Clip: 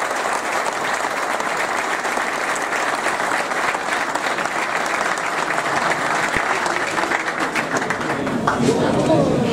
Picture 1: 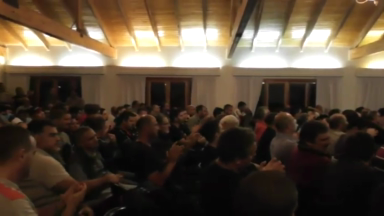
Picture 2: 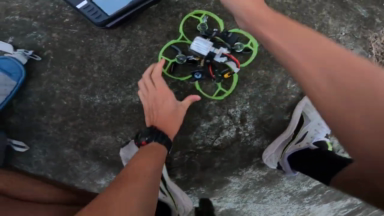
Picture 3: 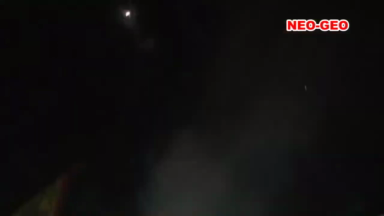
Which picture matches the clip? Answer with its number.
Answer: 1